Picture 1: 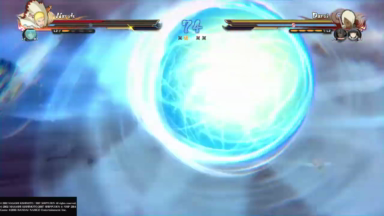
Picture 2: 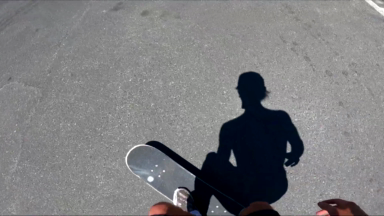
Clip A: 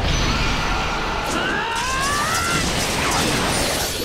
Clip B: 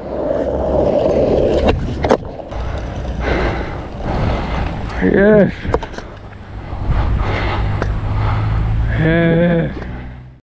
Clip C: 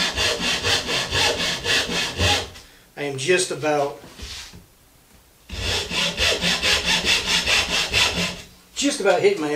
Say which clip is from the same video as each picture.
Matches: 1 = A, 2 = B